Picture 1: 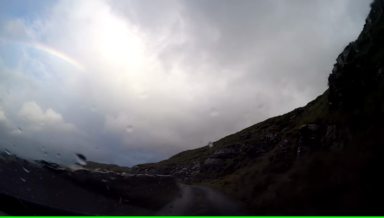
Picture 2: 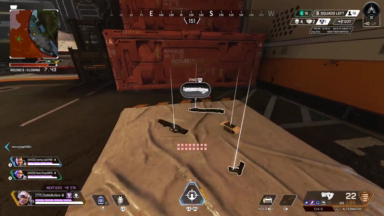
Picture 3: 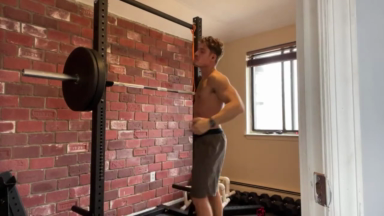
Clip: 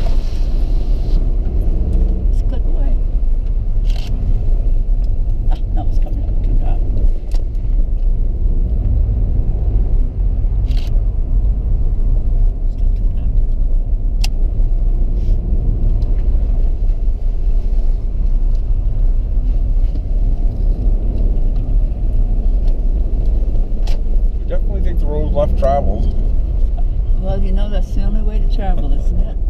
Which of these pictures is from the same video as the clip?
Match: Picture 1